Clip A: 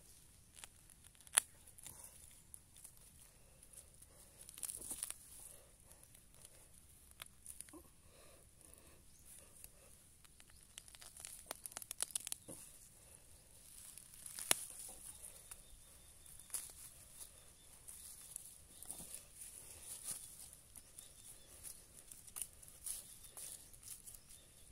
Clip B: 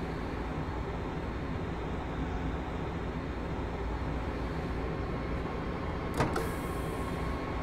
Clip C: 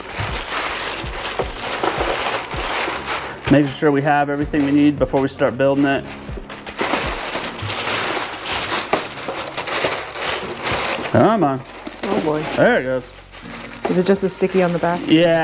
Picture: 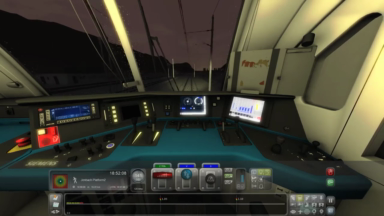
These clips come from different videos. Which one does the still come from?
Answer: B